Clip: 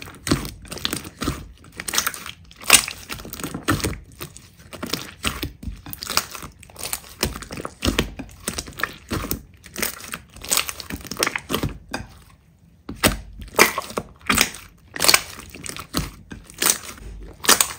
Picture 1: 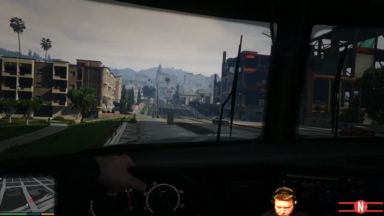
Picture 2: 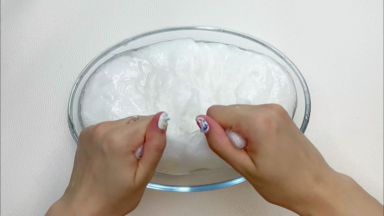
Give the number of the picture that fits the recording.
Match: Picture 2